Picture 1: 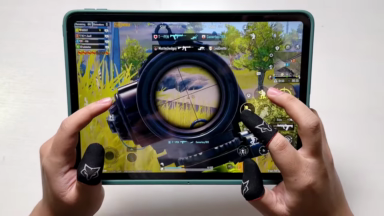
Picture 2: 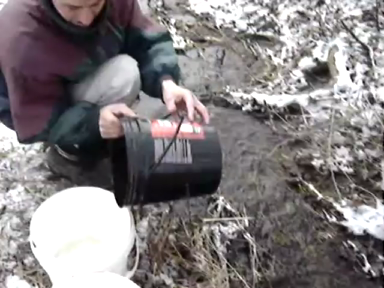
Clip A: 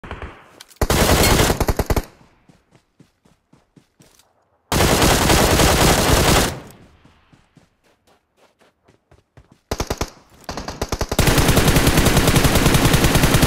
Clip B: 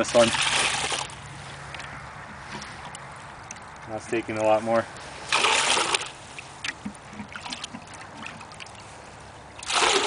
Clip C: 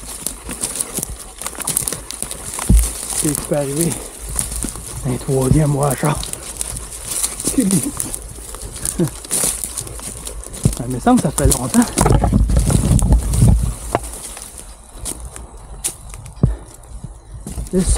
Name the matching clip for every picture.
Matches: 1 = A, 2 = B